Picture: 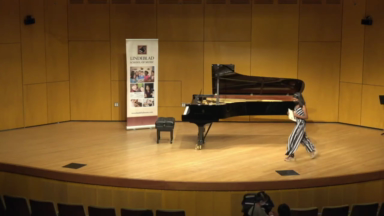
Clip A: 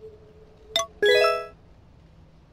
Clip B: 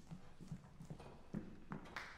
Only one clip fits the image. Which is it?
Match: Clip B